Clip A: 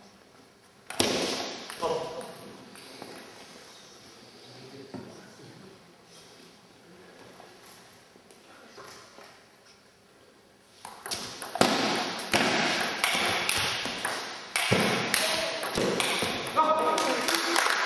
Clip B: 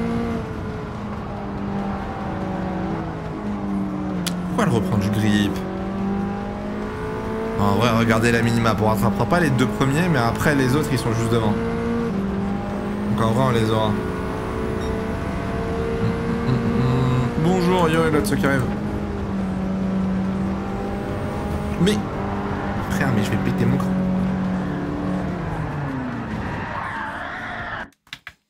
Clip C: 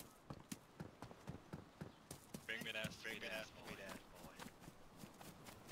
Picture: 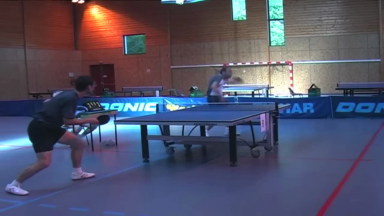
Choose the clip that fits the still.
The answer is A